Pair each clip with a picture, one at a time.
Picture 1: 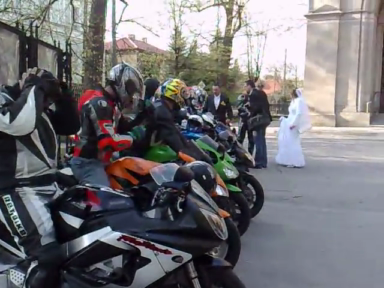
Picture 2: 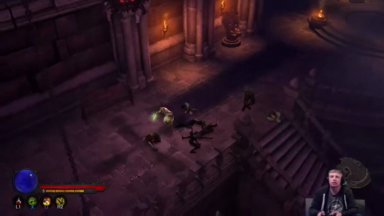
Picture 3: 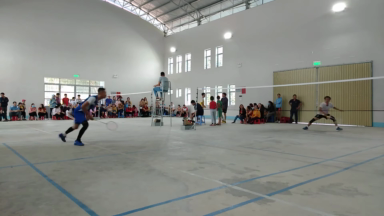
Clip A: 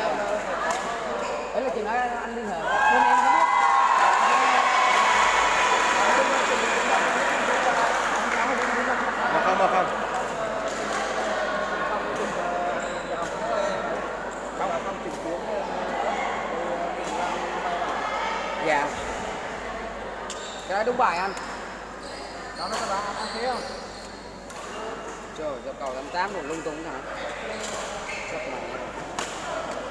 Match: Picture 3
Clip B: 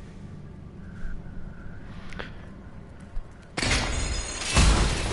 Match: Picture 2